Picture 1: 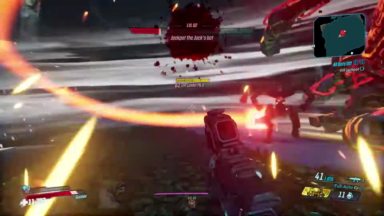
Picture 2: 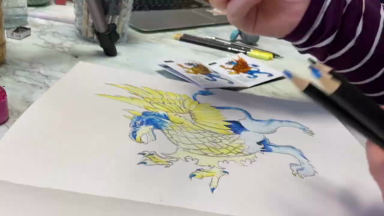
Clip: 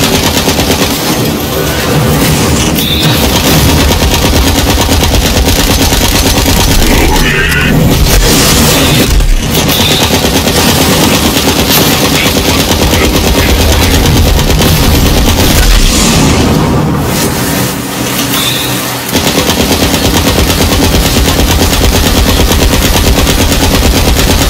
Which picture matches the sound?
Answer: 1